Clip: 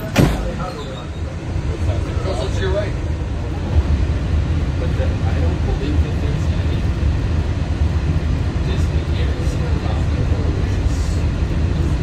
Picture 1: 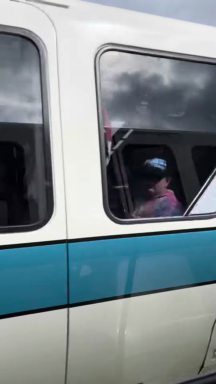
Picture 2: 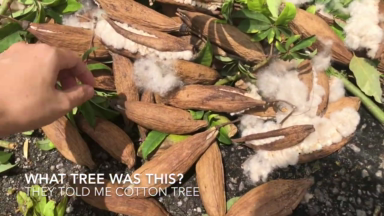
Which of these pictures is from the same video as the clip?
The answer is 1